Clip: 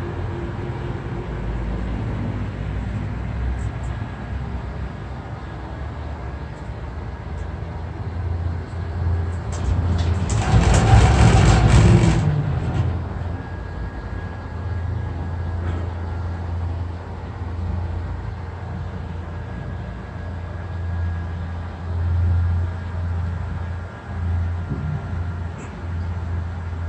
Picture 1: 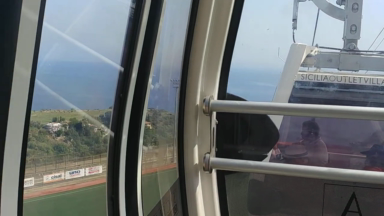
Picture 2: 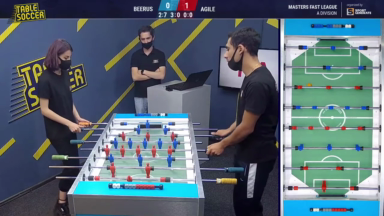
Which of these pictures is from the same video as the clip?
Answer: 1